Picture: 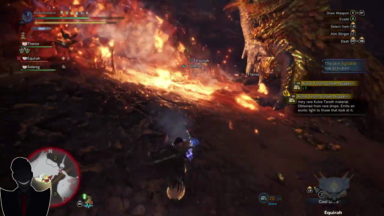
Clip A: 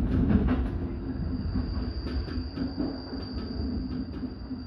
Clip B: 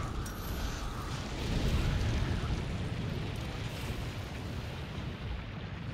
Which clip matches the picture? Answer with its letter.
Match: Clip B